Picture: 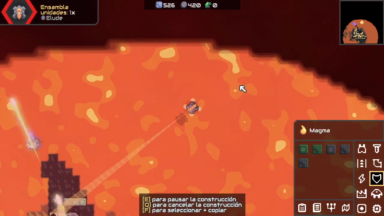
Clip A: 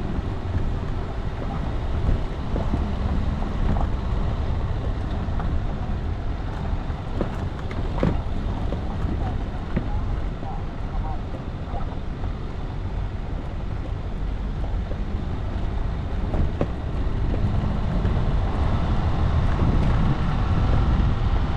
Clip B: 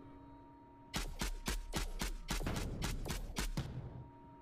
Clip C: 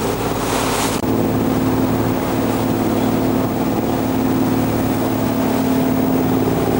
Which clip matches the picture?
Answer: B